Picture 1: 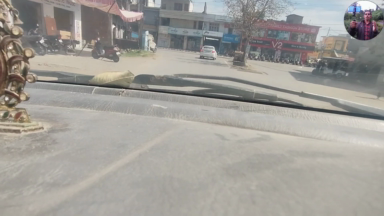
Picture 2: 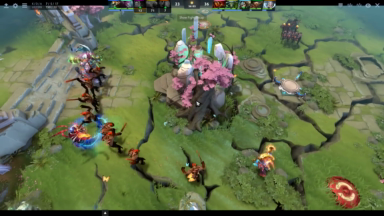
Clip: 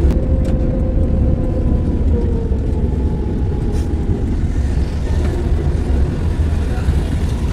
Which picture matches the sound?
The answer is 1